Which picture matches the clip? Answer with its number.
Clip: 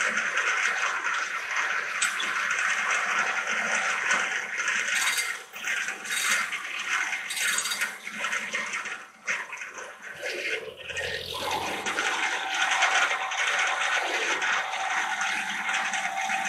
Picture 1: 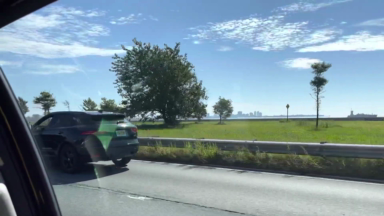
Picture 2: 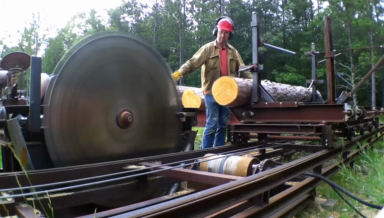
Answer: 2